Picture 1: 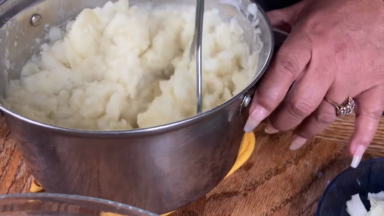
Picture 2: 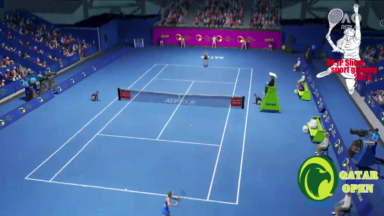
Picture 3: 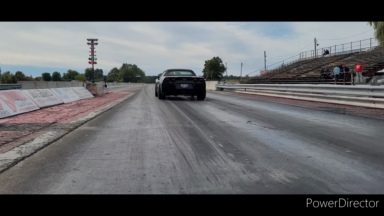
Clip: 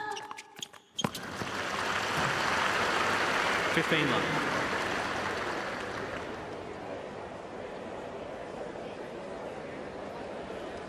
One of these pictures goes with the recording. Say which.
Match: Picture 2